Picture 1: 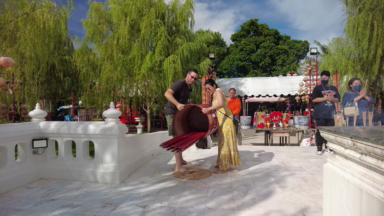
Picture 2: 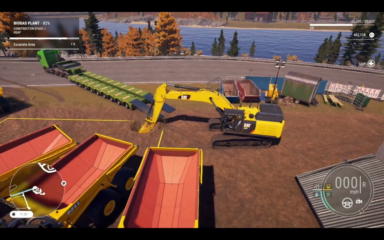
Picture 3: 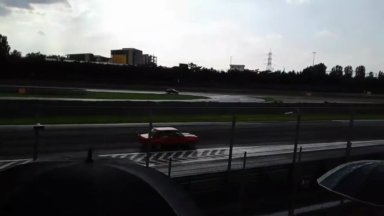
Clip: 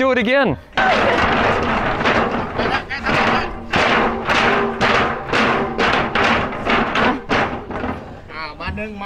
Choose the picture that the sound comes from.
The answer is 1